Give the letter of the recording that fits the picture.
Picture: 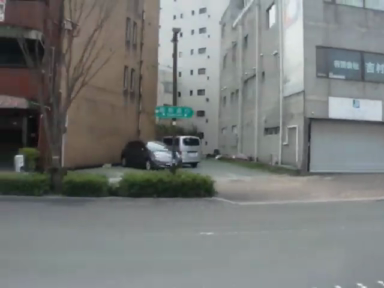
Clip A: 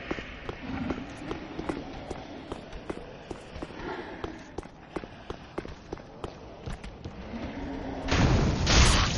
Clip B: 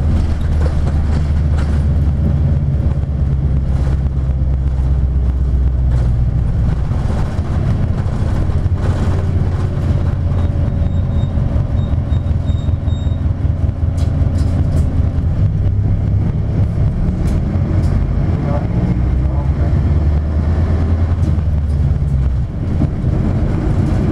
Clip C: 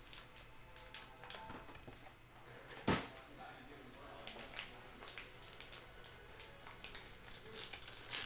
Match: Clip B